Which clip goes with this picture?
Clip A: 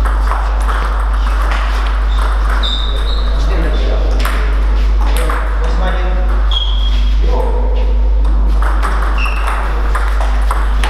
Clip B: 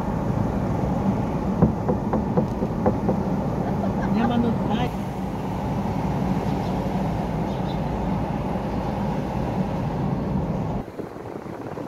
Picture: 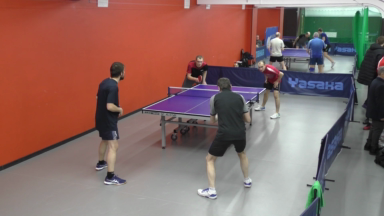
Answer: A